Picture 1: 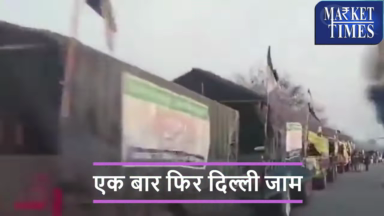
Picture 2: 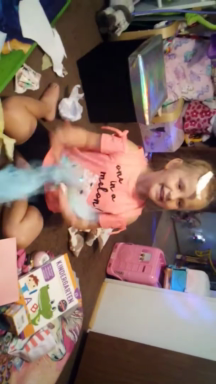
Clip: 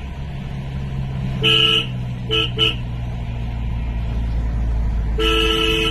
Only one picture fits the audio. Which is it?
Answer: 1